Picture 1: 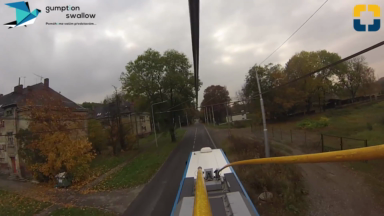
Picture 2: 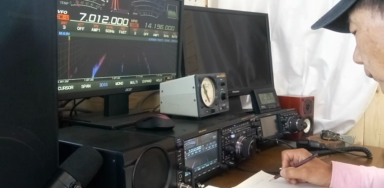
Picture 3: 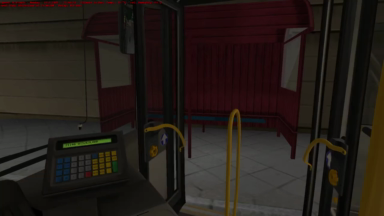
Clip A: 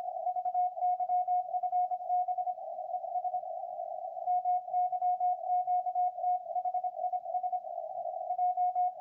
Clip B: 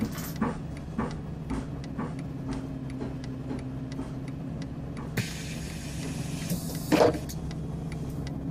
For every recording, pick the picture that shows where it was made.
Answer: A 2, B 3